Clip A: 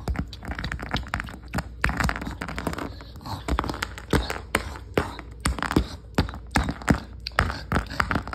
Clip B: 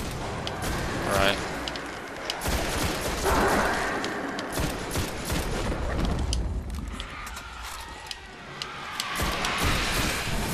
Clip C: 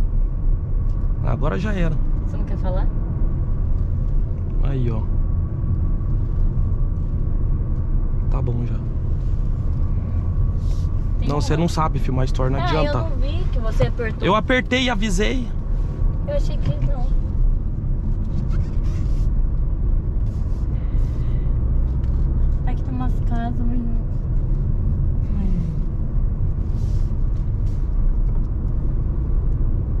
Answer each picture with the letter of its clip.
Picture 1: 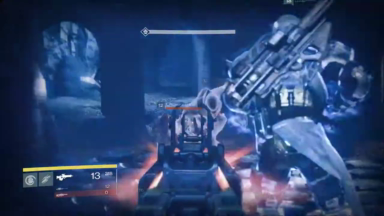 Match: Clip B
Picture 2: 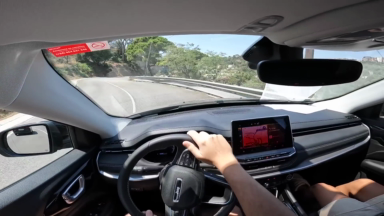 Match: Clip C